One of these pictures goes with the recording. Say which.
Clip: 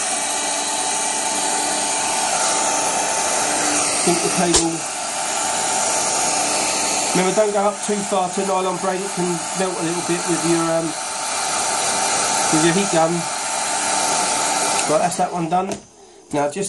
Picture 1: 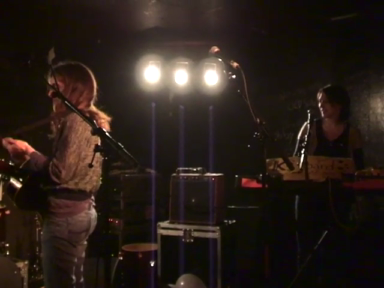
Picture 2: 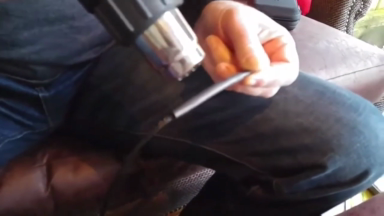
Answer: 2